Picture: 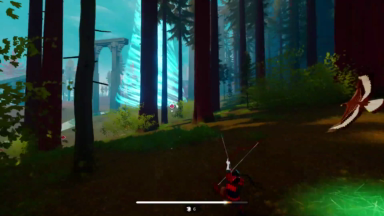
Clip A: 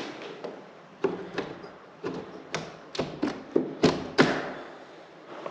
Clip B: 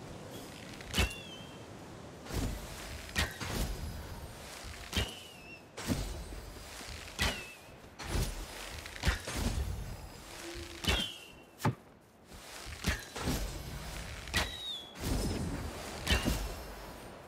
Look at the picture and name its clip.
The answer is B